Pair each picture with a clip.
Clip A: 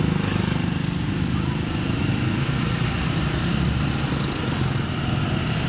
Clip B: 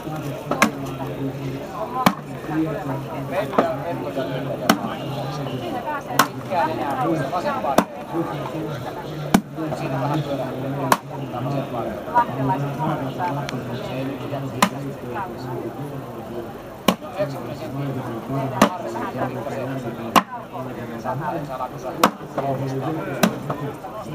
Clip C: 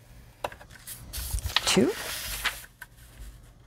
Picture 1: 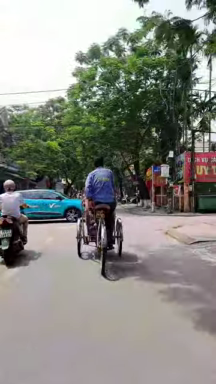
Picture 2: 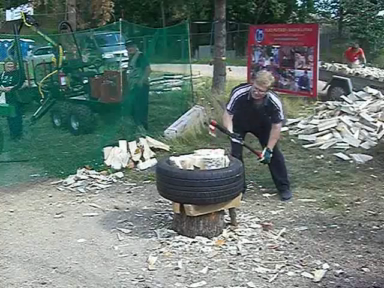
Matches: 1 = A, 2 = B